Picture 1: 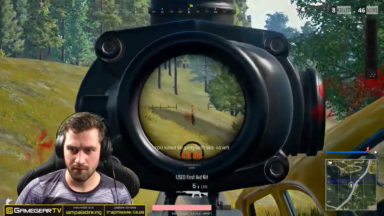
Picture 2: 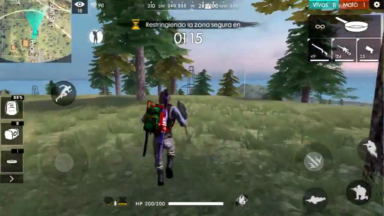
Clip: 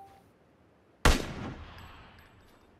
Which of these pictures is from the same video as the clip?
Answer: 1